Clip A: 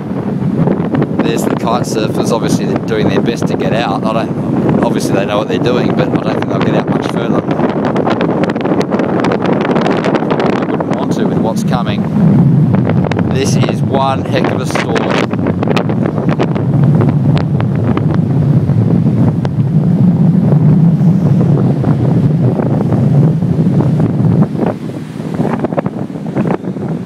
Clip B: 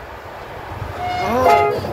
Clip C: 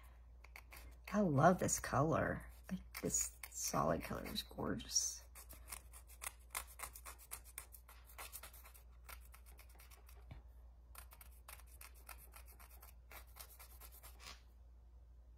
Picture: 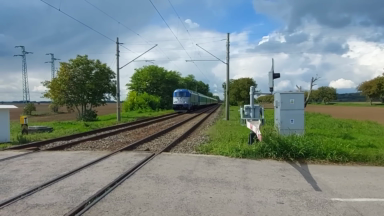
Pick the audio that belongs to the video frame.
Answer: B